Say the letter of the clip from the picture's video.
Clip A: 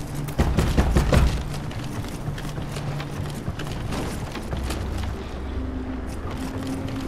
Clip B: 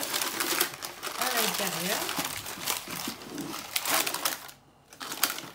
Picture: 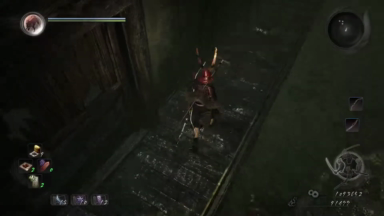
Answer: A